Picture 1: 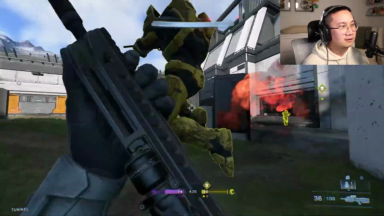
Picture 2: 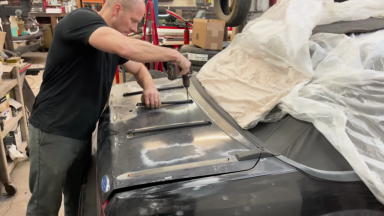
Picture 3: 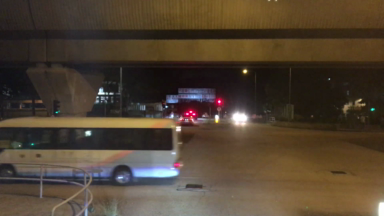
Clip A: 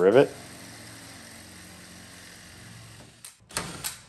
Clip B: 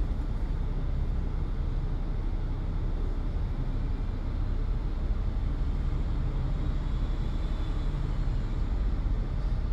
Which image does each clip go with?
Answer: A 2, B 3